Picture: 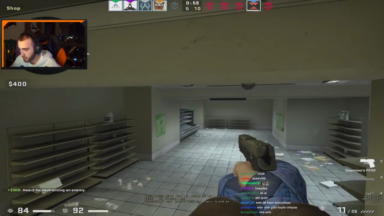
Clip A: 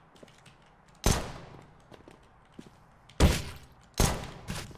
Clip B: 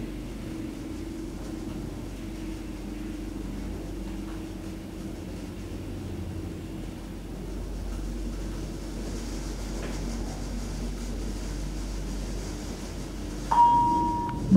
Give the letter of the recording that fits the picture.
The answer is A